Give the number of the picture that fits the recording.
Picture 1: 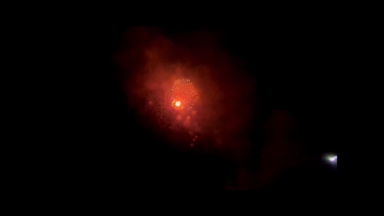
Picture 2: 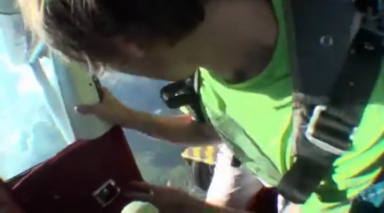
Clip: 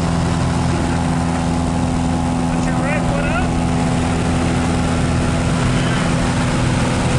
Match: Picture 2